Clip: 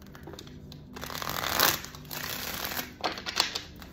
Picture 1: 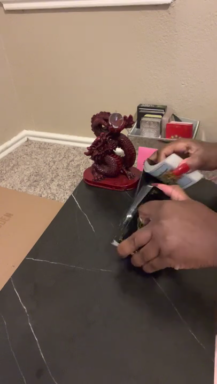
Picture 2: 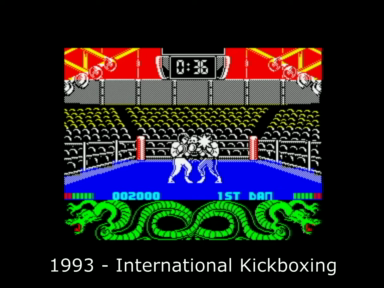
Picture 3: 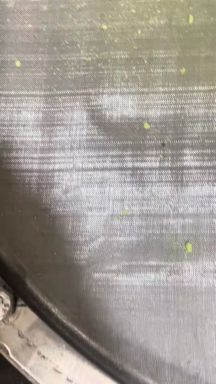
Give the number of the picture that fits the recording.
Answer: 1